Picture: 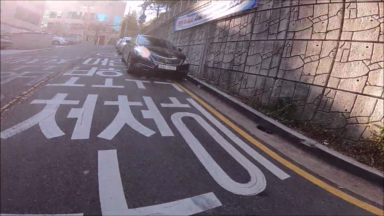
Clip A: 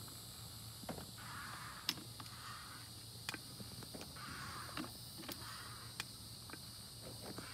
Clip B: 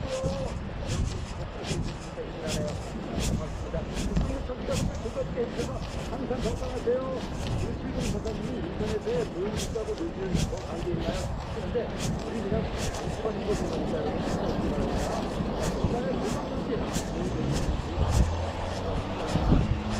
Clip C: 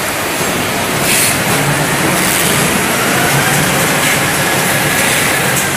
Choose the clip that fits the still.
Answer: B